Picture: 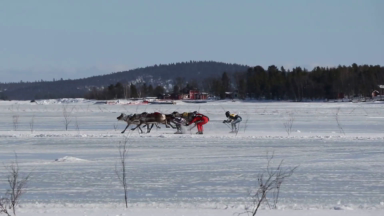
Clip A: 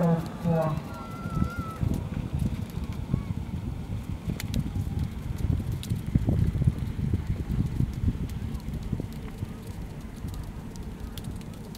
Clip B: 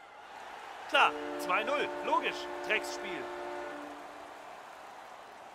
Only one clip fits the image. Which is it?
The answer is A